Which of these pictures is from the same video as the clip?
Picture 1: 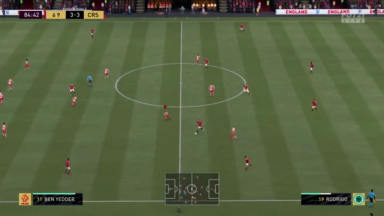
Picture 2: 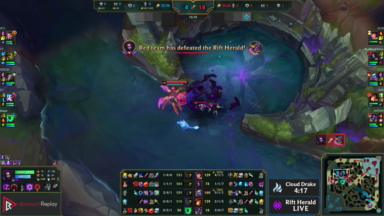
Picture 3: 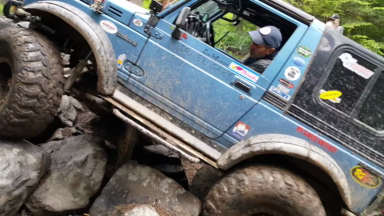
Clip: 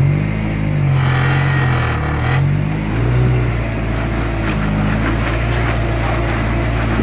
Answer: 3